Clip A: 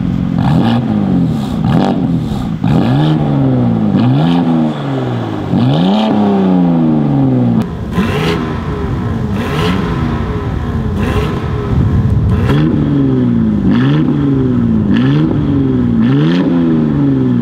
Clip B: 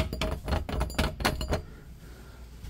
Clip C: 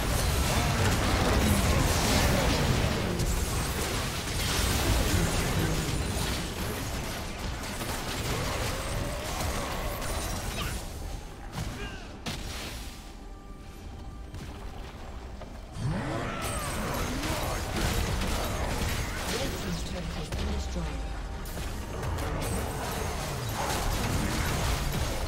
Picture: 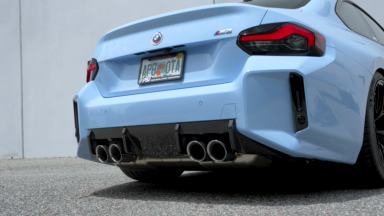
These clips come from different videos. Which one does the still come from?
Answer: A